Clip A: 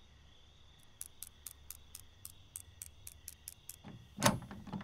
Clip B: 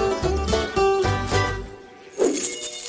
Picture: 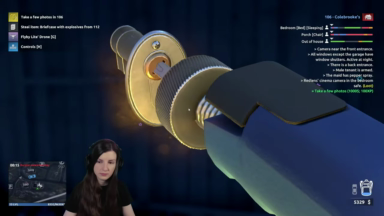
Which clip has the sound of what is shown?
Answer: A